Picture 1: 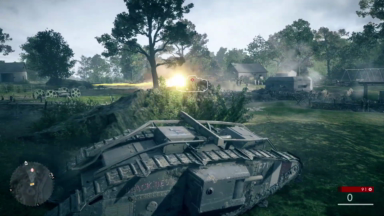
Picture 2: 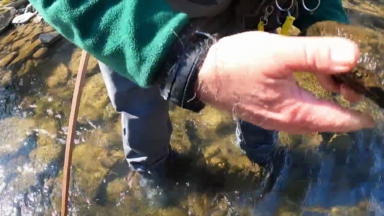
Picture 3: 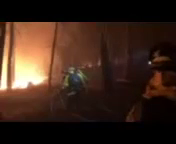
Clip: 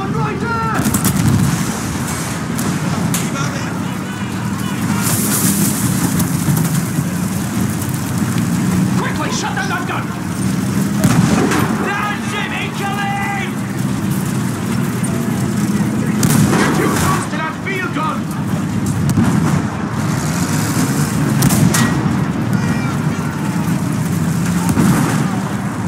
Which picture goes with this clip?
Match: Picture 1